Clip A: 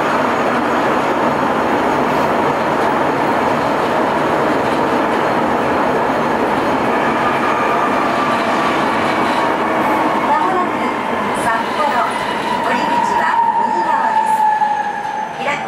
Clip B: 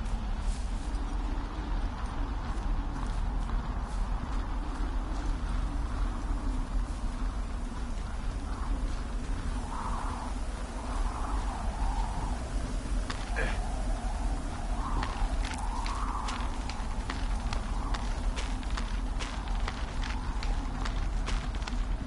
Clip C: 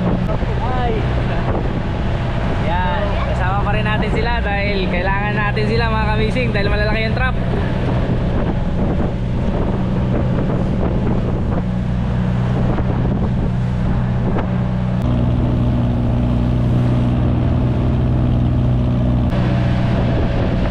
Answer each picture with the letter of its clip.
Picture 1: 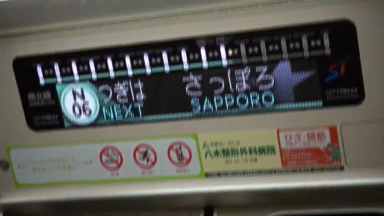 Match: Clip A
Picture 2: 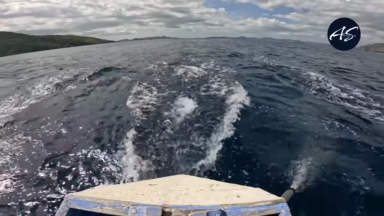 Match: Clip C